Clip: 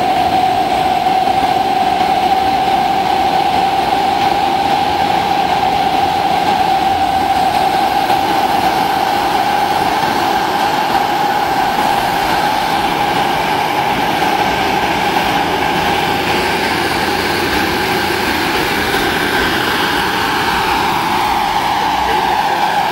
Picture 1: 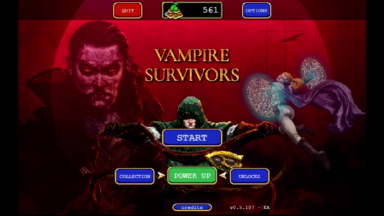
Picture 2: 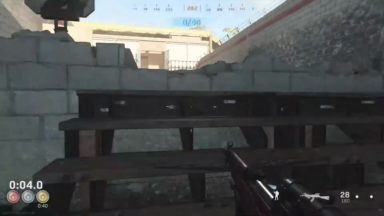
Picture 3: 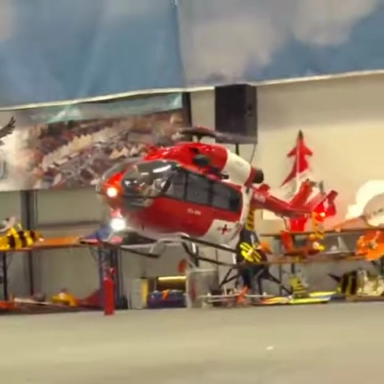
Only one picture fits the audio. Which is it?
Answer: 3